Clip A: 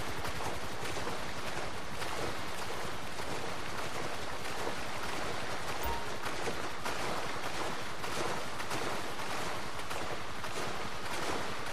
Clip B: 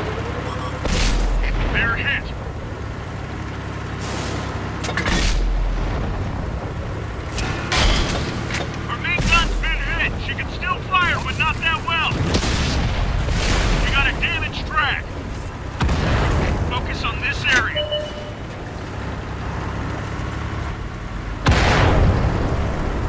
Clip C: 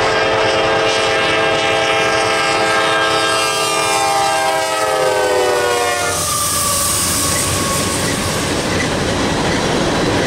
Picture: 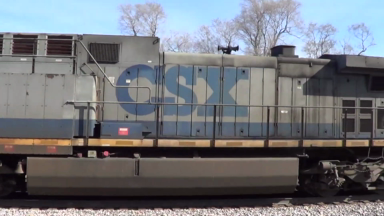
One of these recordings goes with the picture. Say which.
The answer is C